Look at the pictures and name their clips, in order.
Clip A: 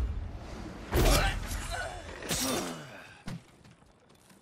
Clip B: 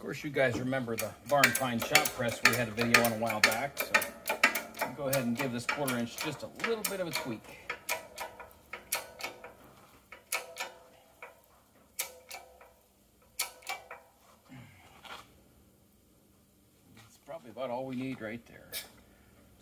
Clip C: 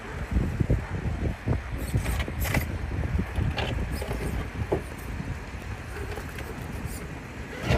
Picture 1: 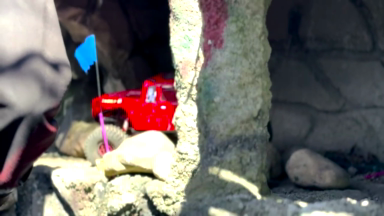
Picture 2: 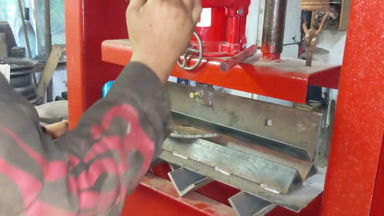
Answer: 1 C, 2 B